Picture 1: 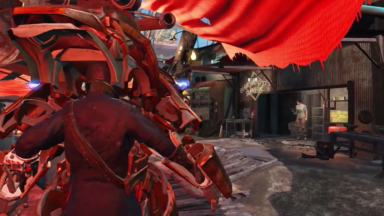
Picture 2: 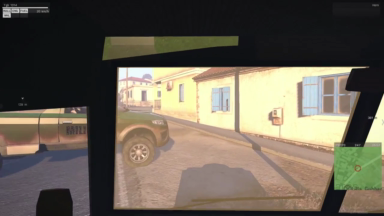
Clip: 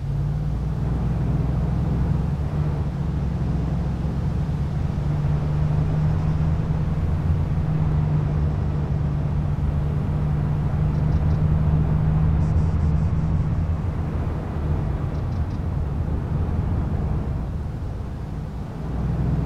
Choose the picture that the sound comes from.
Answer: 2